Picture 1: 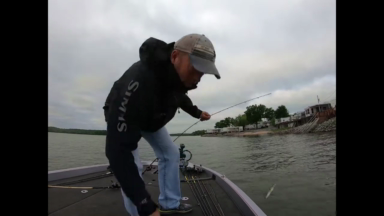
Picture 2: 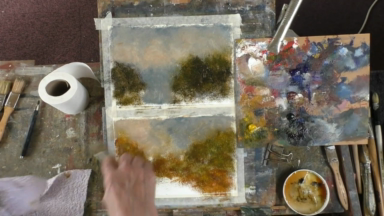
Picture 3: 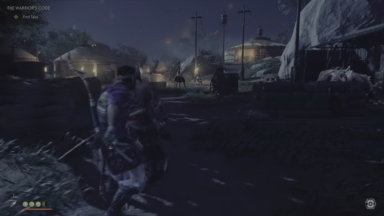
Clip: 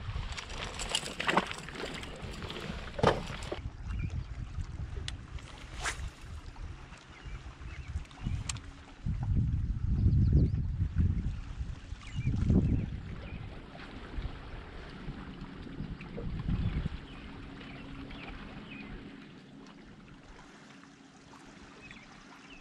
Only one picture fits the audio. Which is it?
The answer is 1